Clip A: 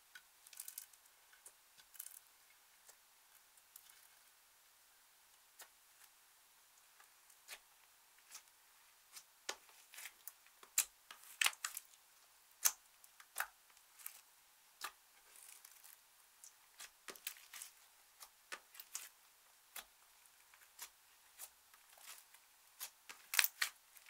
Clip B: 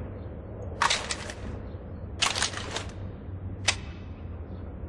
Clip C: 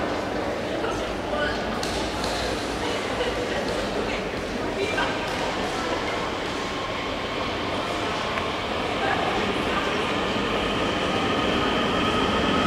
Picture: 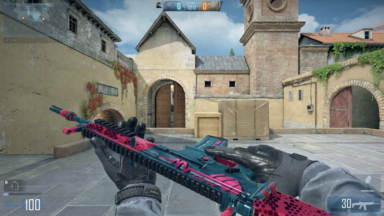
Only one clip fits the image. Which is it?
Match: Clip B